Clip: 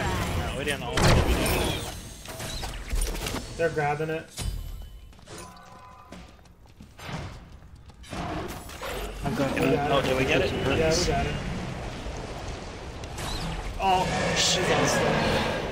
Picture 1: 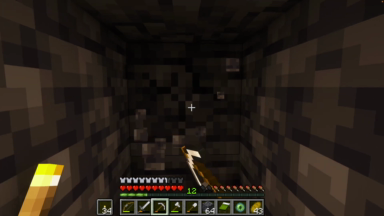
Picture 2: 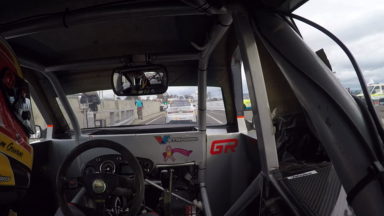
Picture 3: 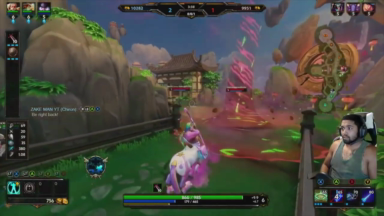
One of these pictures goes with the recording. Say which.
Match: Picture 3